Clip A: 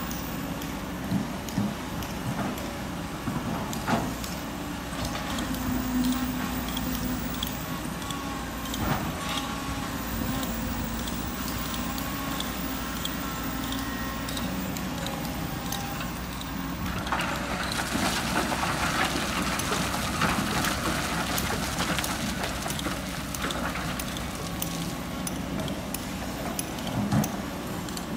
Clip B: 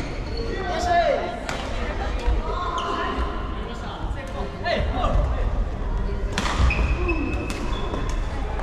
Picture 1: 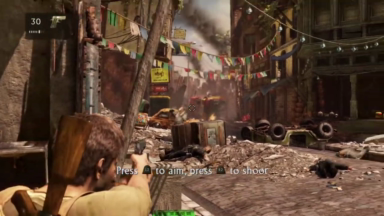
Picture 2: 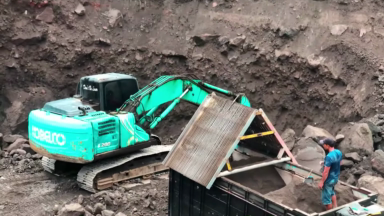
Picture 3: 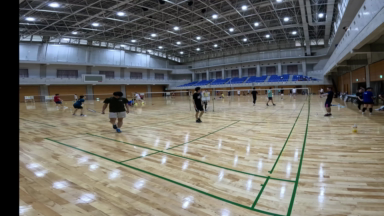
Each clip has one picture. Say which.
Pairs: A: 2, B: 3